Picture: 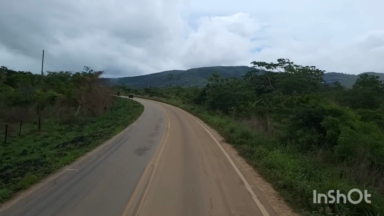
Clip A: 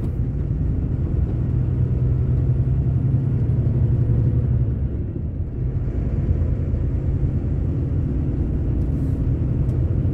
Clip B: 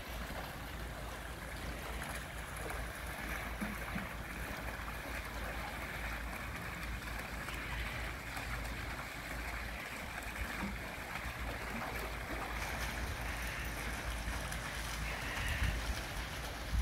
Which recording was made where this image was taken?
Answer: A